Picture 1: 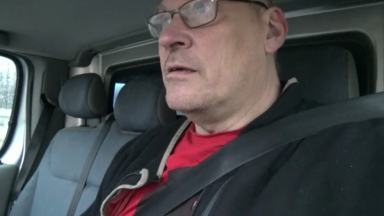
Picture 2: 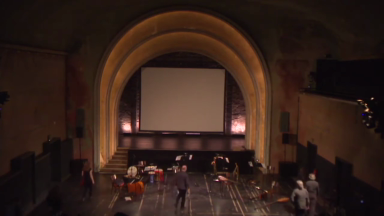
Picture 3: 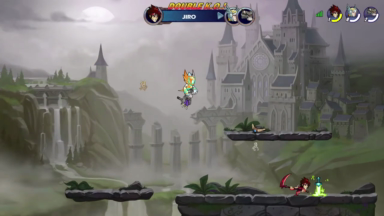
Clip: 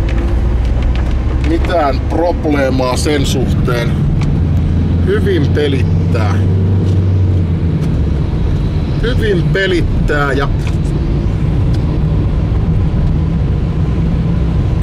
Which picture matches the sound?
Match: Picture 1